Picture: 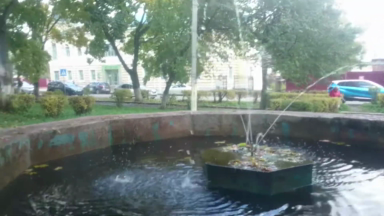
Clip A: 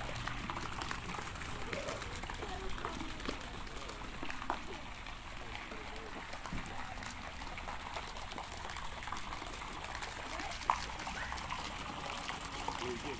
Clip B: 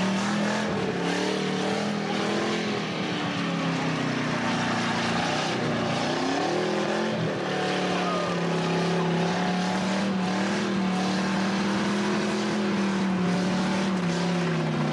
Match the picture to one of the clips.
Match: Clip A